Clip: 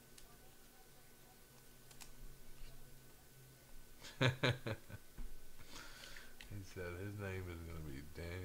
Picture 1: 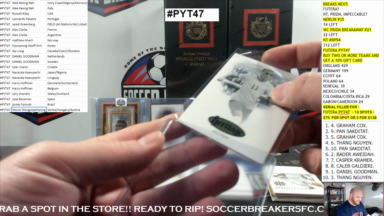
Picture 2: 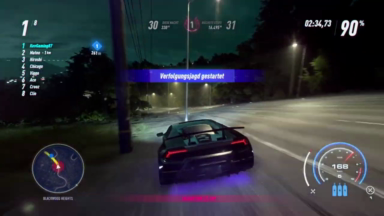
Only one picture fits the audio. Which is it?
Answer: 1